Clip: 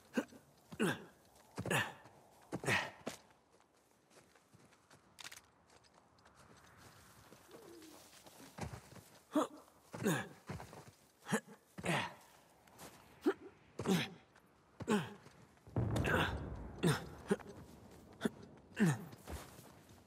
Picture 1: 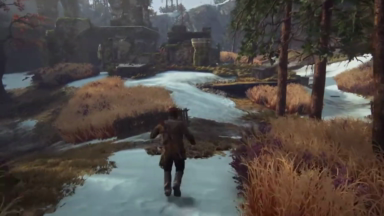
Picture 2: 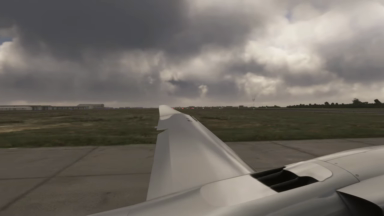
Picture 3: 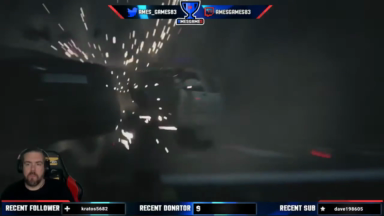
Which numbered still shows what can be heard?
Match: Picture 1